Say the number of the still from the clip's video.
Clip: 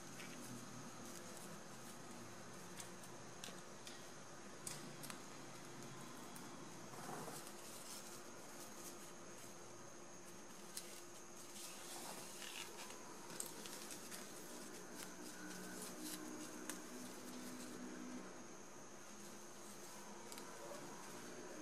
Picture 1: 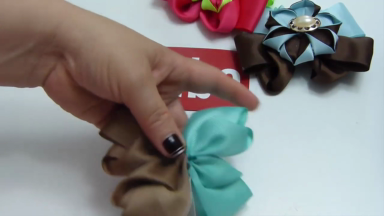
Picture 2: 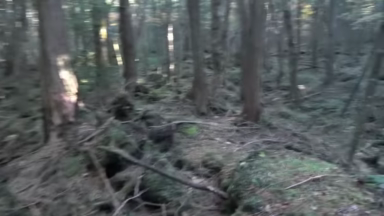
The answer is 1